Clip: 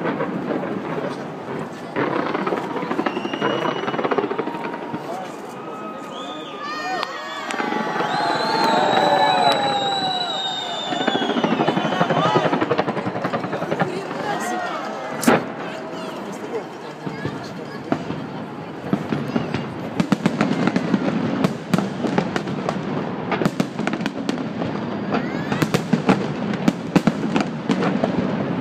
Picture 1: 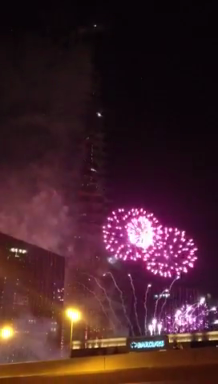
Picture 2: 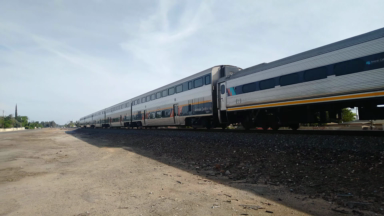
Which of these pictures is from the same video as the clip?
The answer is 1